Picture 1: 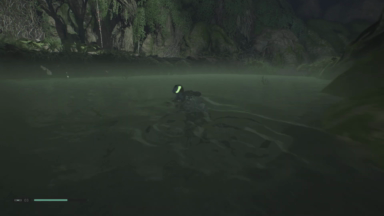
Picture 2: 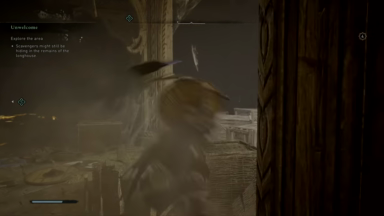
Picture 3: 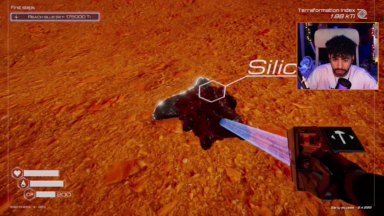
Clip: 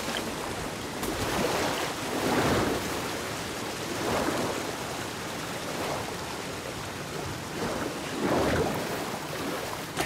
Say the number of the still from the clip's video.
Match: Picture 1